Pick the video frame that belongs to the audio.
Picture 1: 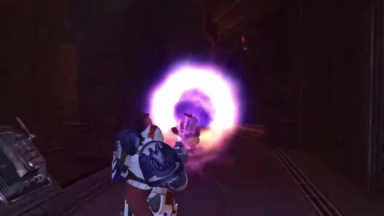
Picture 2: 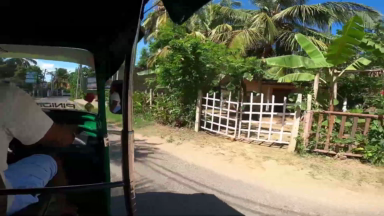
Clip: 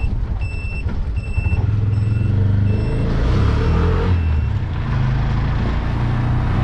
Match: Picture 2